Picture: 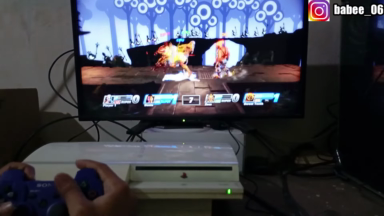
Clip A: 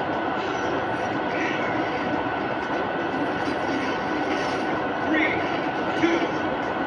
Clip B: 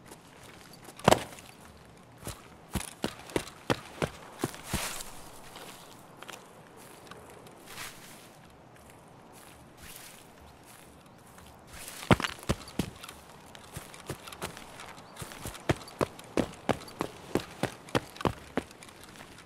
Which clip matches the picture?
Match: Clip A